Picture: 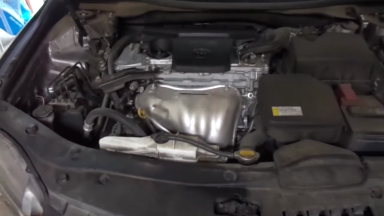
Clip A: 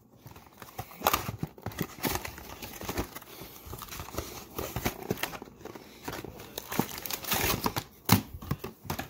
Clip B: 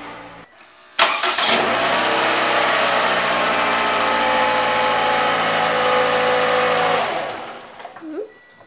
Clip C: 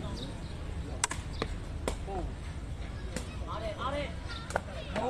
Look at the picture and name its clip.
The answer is B